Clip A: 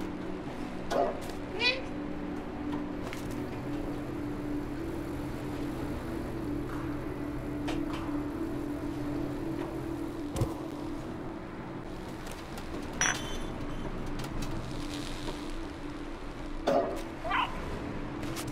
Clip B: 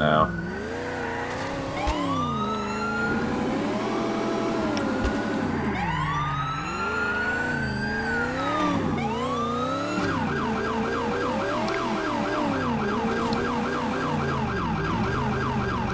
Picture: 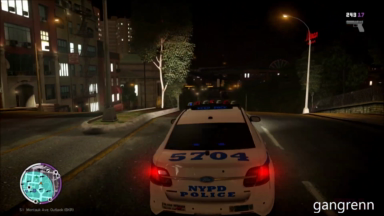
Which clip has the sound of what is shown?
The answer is B